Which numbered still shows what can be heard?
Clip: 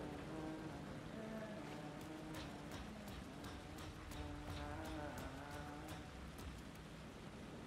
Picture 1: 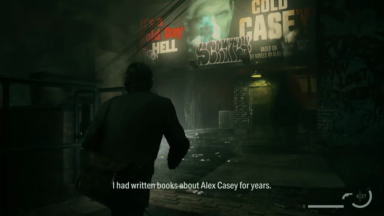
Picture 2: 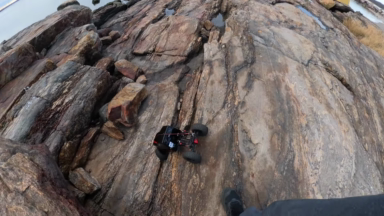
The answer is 1